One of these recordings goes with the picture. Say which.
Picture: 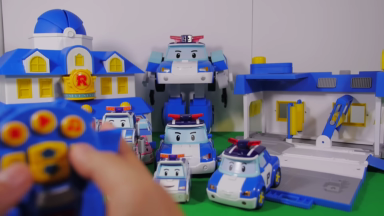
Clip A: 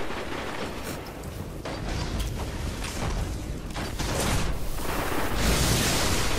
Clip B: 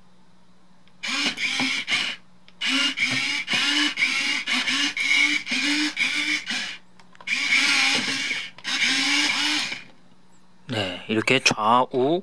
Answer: B